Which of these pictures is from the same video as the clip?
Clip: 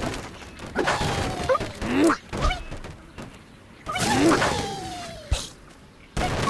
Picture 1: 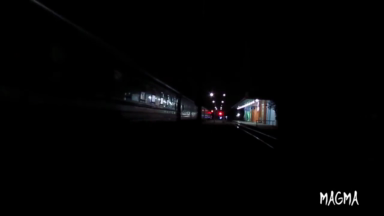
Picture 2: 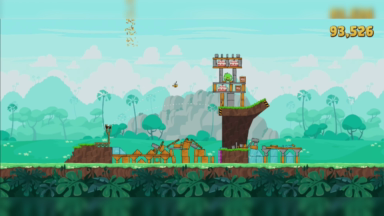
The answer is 2